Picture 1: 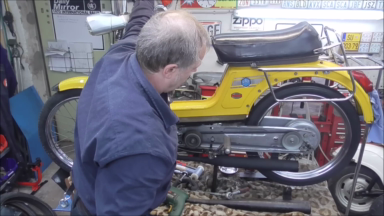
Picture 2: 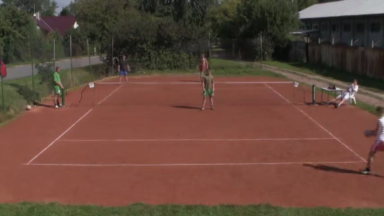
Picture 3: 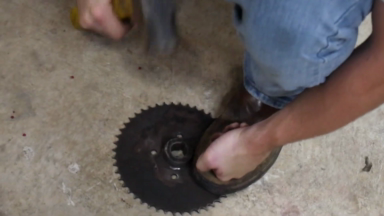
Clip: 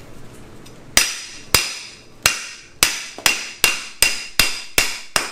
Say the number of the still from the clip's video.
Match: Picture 3